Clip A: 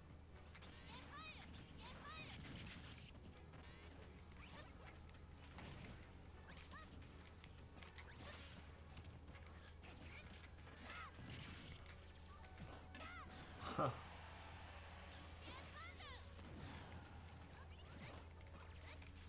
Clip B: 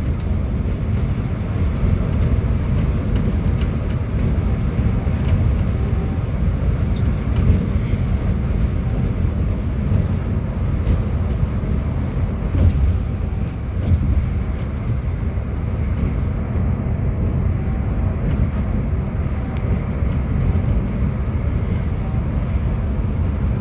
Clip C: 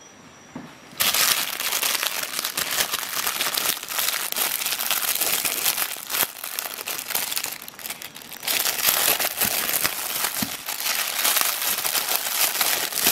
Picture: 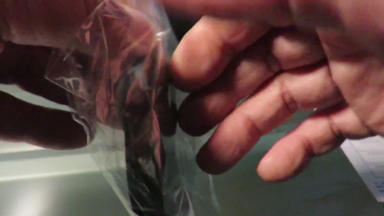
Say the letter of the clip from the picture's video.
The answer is C